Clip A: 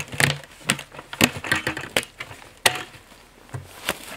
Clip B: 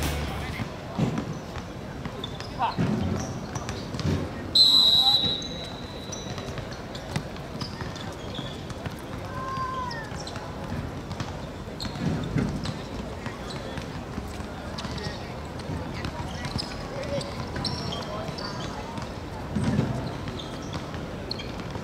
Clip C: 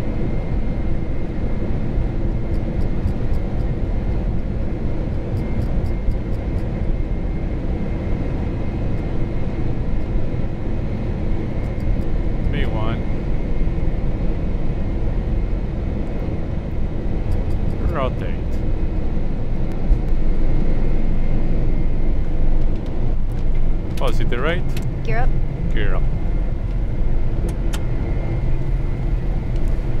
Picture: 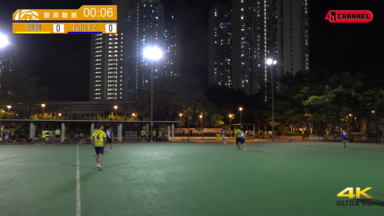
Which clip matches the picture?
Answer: B